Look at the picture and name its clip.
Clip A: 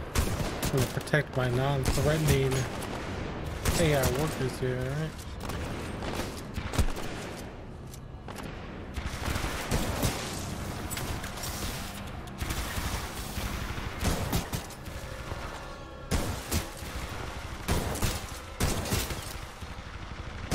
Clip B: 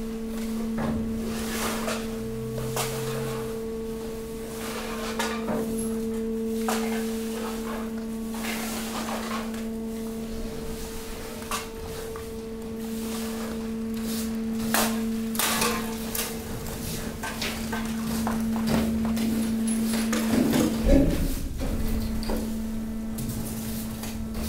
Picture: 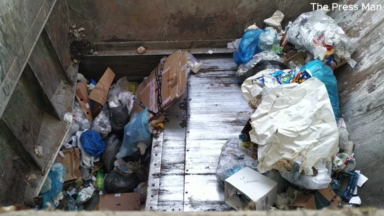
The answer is B